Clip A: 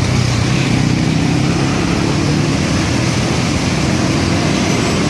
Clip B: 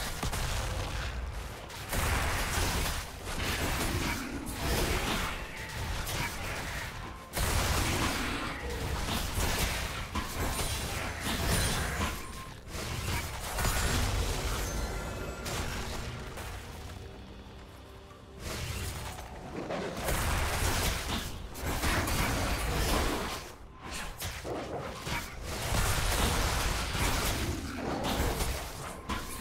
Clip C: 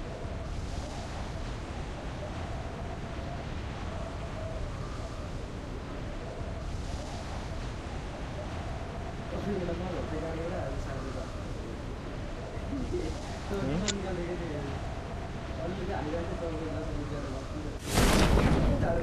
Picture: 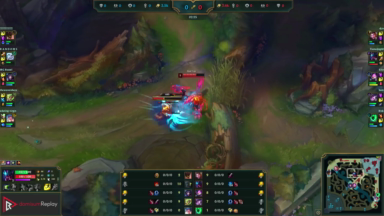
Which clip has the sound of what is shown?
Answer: B